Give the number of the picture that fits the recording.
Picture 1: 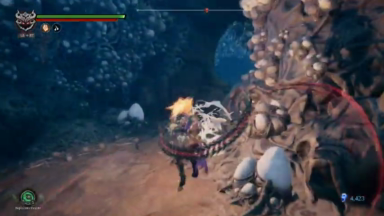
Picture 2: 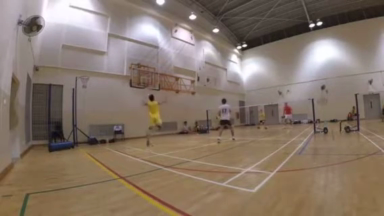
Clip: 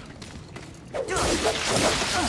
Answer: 1